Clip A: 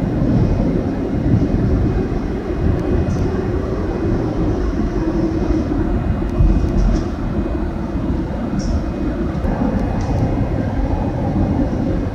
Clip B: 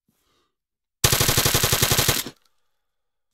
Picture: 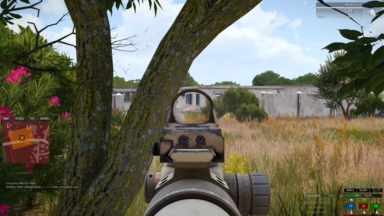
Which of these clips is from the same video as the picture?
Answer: B